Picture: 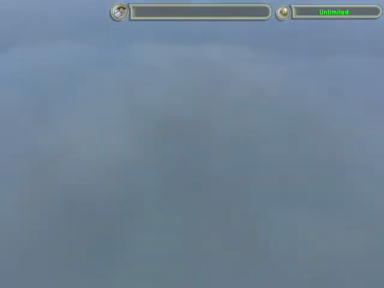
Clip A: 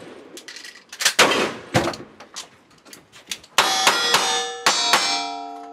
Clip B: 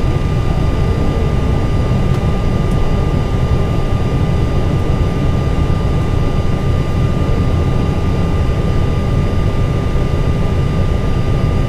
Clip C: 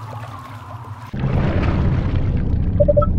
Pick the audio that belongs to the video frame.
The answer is C